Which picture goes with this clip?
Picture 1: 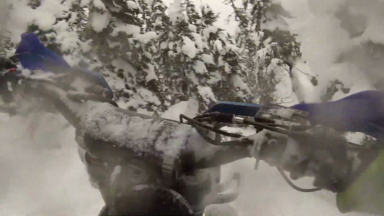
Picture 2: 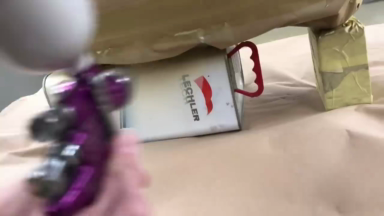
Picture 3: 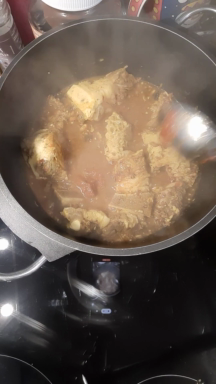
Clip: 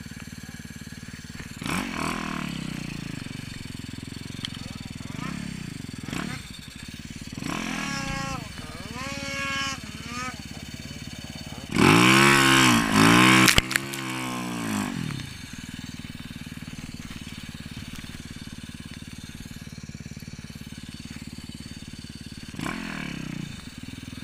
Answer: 1